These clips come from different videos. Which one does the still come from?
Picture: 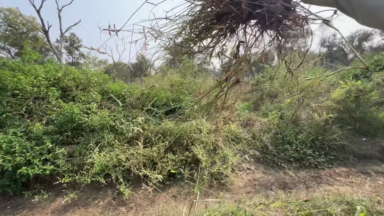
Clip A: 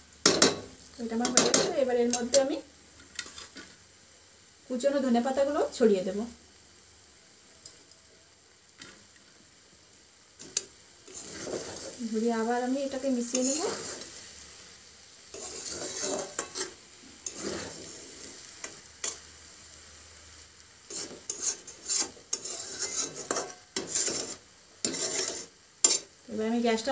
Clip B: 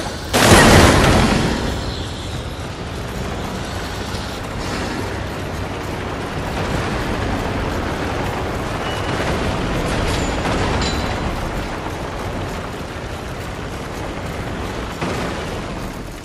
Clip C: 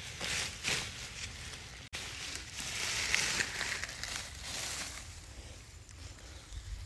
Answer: C